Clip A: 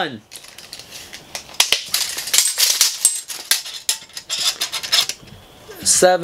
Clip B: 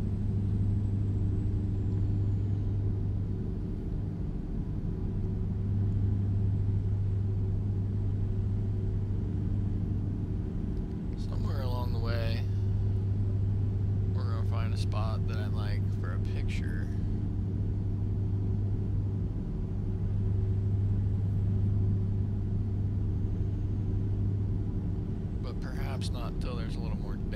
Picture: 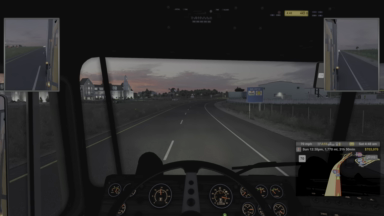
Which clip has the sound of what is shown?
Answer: B